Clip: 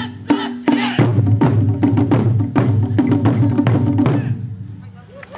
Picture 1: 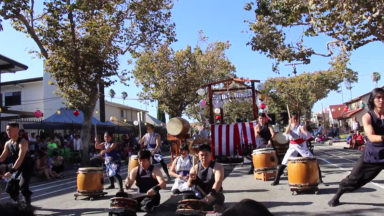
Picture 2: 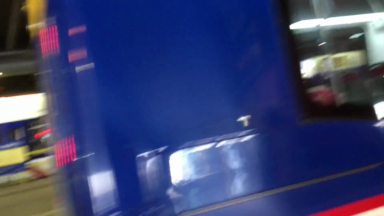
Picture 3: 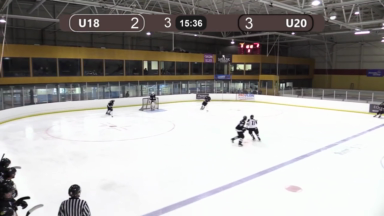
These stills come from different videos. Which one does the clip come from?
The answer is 1